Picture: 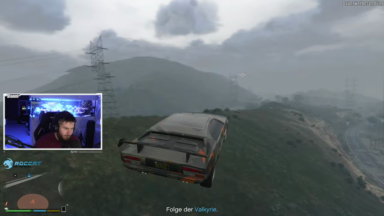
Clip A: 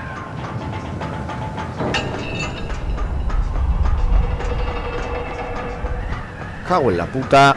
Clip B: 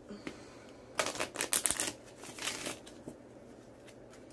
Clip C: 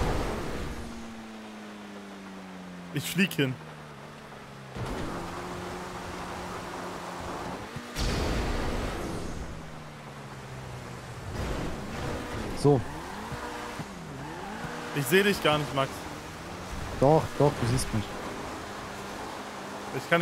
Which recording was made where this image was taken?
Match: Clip C